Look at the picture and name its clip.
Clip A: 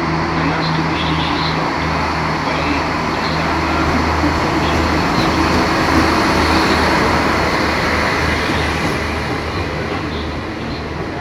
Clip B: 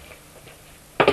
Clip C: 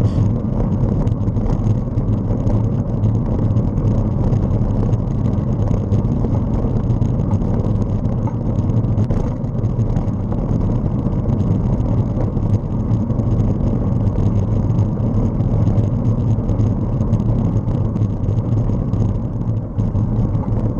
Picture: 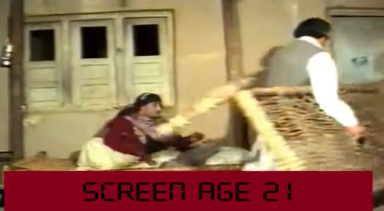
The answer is B